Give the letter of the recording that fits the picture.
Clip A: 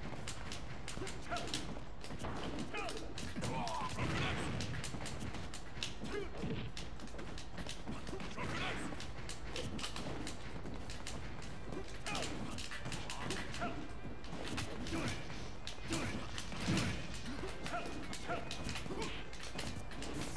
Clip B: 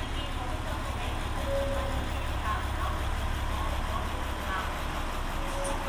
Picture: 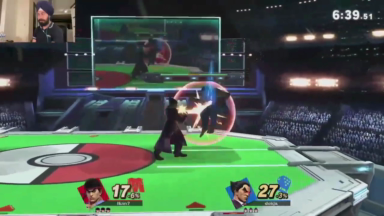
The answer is A